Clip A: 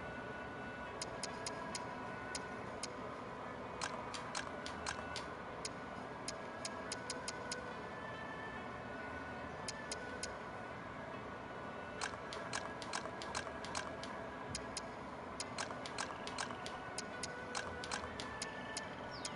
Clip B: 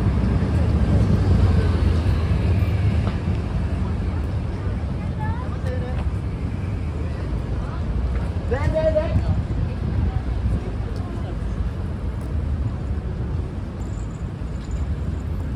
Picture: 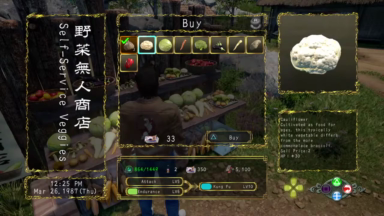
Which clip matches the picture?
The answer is A